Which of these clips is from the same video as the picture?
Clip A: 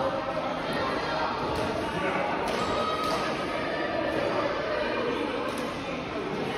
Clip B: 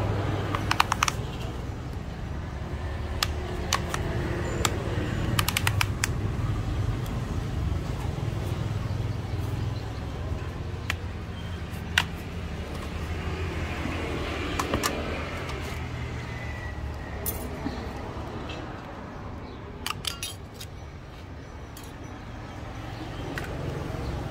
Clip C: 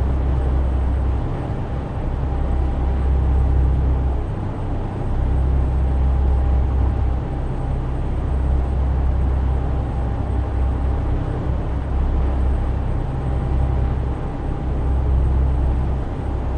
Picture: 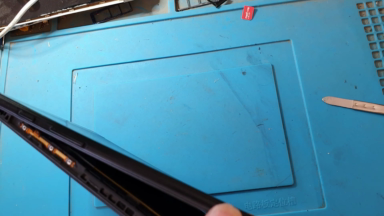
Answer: B